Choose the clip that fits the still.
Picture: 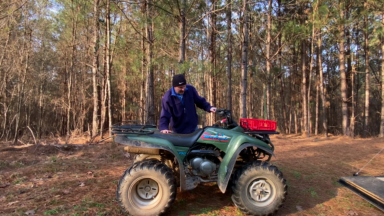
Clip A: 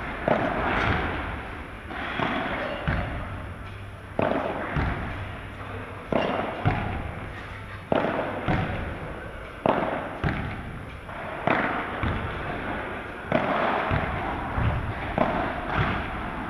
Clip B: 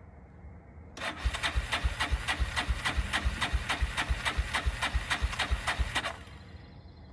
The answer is B